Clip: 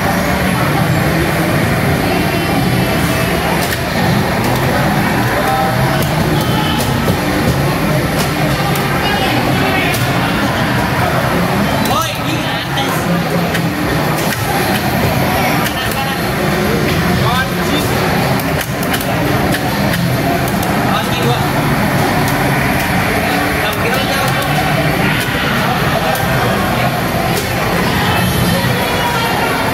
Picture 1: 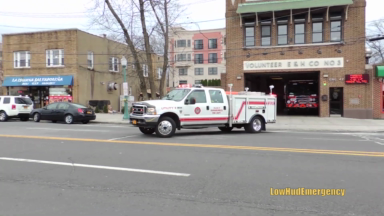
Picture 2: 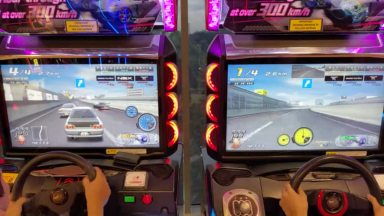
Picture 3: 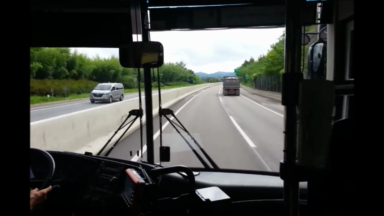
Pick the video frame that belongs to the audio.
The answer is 2